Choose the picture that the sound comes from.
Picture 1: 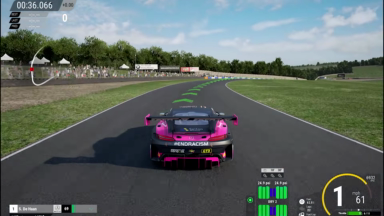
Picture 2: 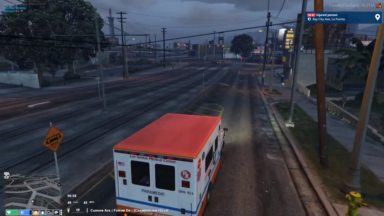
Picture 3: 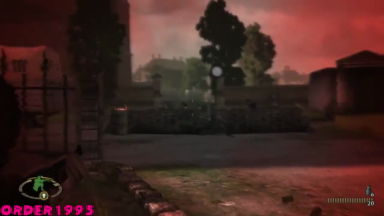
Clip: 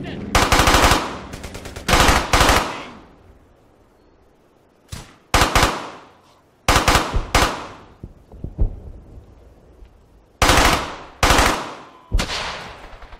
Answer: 3